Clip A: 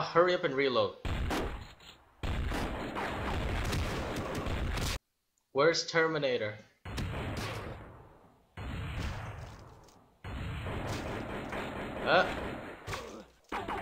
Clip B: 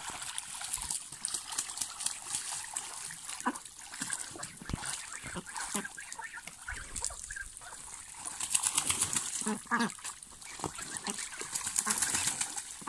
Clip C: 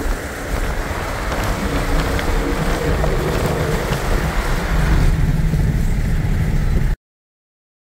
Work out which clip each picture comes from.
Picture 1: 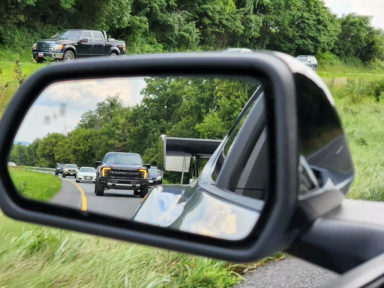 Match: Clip C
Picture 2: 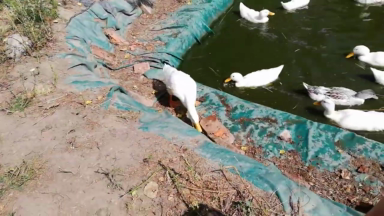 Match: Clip B